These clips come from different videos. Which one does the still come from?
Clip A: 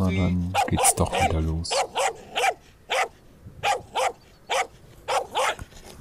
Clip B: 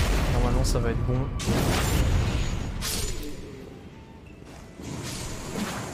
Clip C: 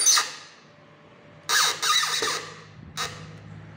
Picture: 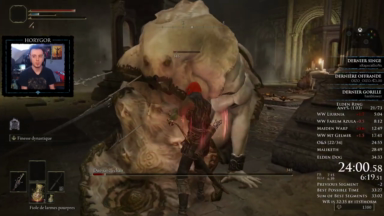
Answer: B